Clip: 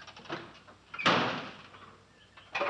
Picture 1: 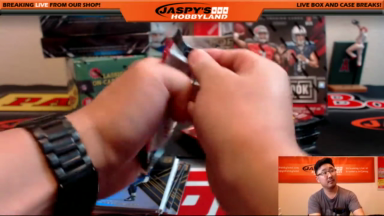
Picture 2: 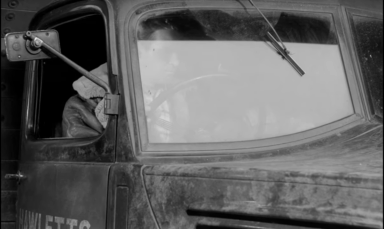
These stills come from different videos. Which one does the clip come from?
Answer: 2